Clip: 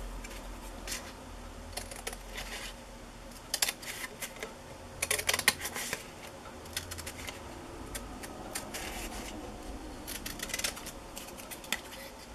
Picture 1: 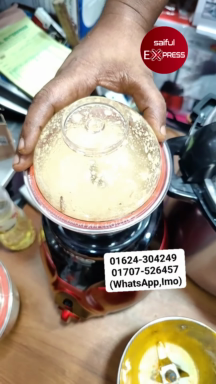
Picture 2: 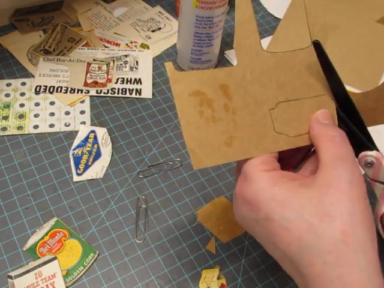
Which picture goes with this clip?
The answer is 2